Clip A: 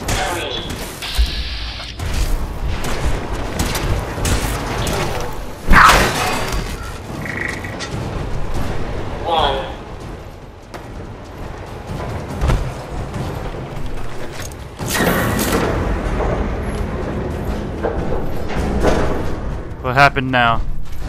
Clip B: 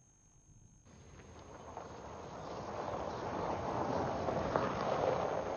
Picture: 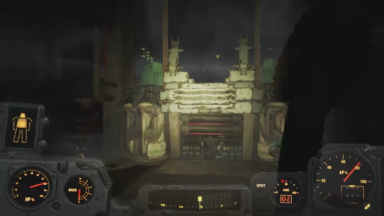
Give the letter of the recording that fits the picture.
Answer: A